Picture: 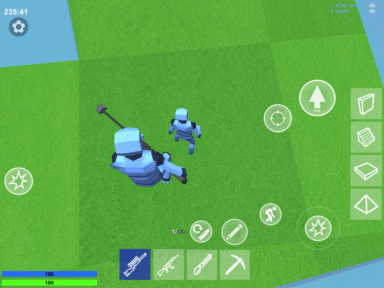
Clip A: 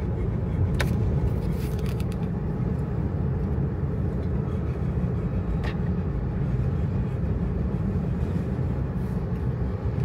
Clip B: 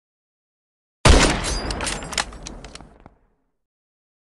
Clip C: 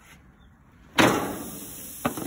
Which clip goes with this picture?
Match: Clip B